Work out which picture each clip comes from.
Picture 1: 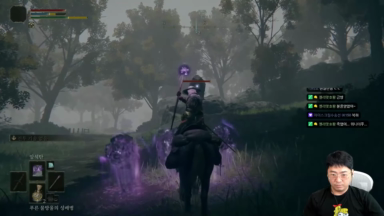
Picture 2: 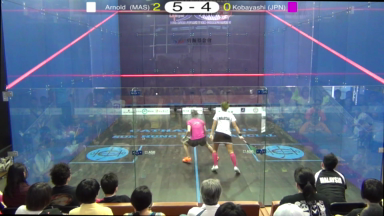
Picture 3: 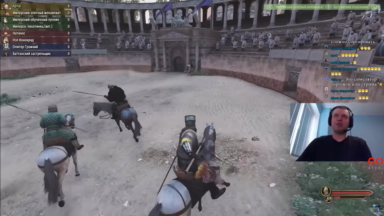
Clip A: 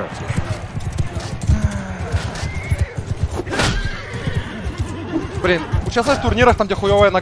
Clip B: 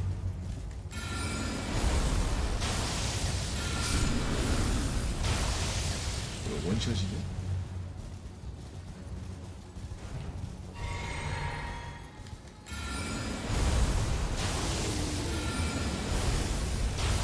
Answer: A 3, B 1